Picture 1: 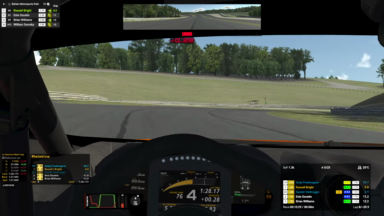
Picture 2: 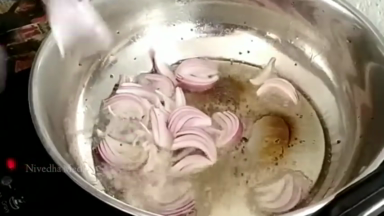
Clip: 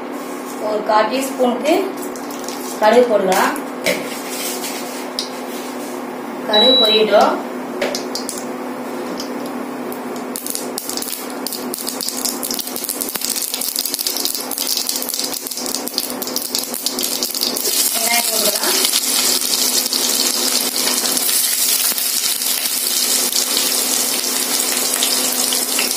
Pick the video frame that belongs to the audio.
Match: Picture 2